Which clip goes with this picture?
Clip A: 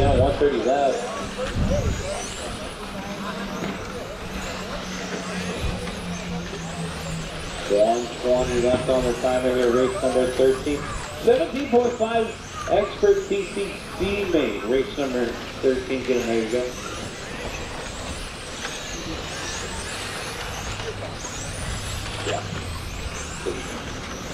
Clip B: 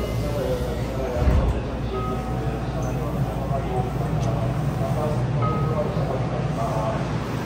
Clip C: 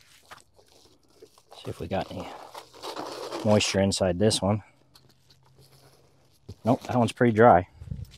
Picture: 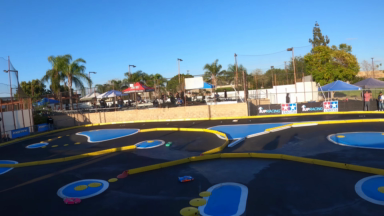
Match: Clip A